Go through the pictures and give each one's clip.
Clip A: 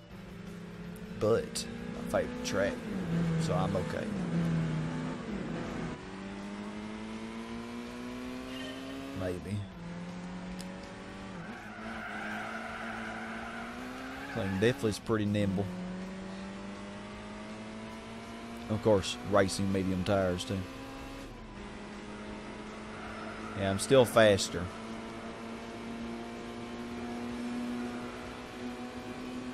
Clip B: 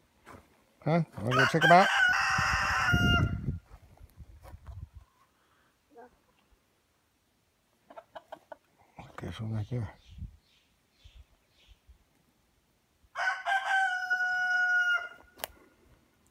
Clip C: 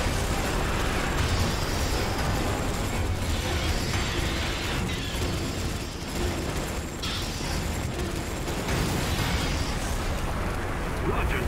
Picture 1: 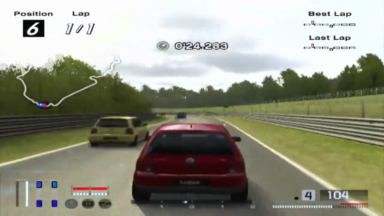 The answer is A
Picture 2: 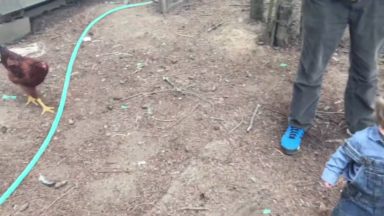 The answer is B